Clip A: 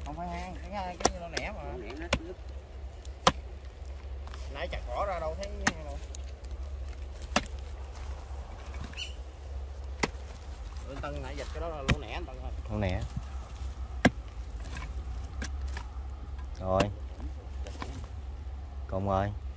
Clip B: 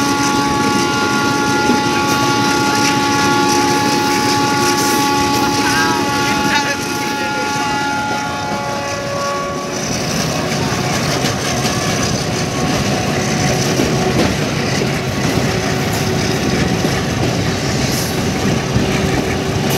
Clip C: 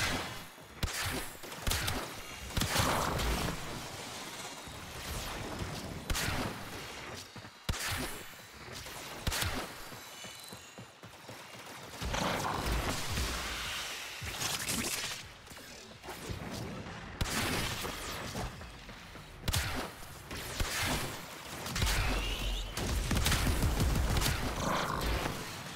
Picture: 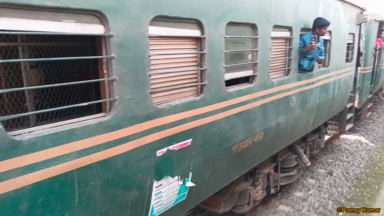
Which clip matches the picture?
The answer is B